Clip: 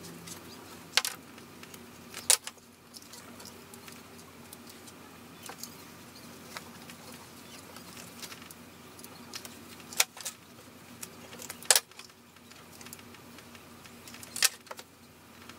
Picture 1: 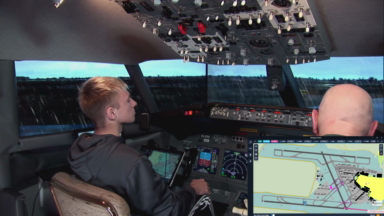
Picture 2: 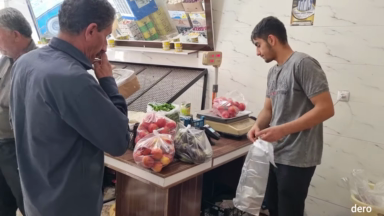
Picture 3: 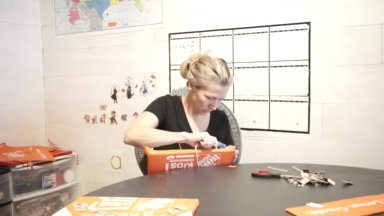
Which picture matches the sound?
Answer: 3